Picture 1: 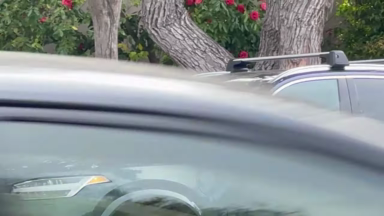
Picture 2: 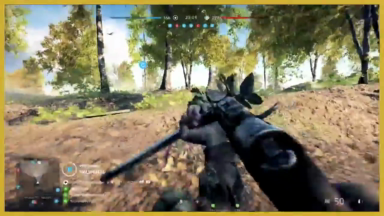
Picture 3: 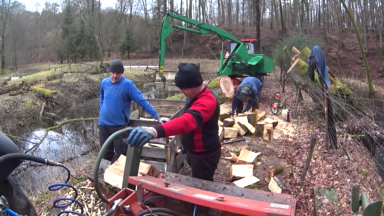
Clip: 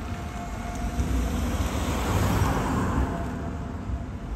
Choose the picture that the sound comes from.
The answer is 1